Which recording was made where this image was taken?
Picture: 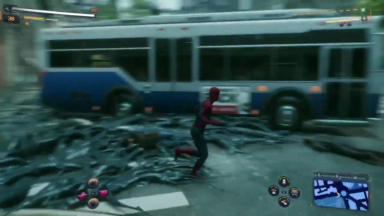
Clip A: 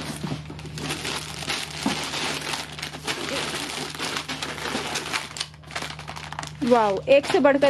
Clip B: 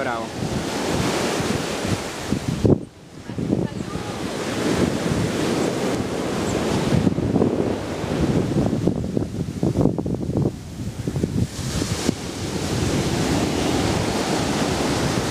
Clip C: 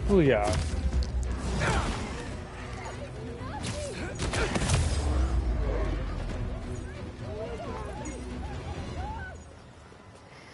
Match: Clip C